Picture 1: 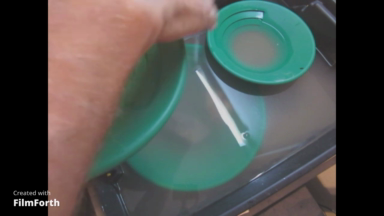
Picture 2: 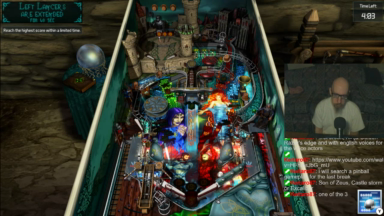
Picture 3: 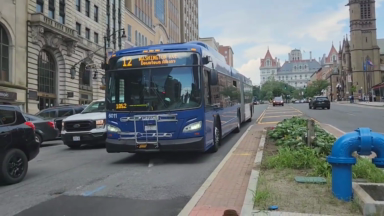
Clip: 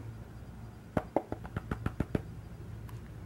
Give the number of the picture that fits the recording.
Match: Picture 1